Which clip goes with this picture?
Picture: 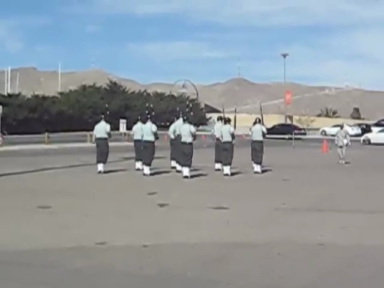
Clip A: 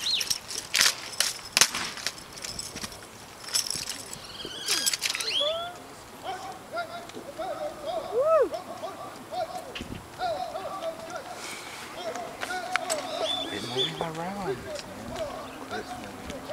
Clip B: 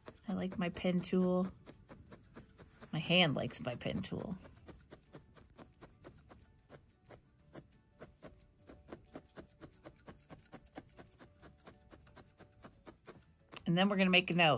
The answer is A